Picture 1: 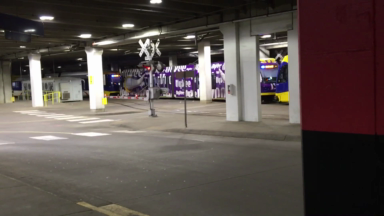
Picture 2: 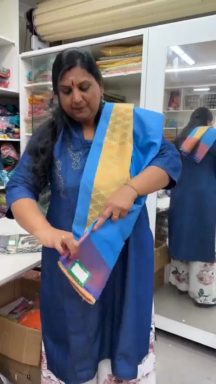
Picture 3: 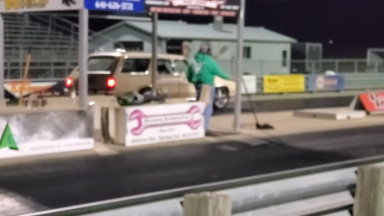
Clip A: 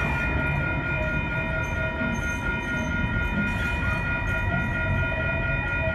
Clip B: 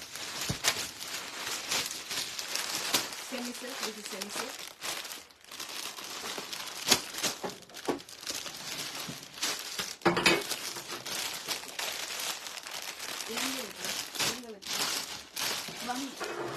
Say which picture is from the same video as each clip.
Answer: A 1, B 2